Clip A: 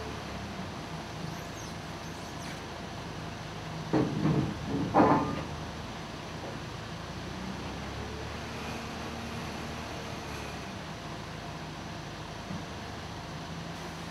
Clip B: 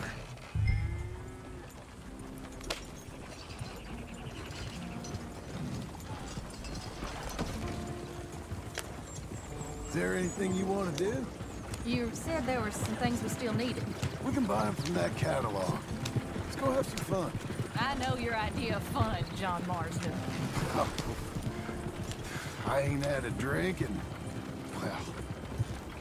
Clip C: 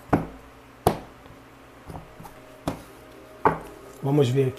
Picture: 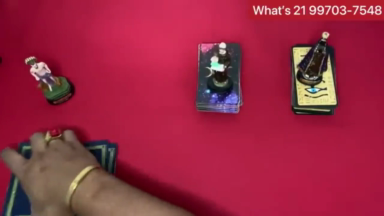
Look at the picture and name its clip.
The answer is C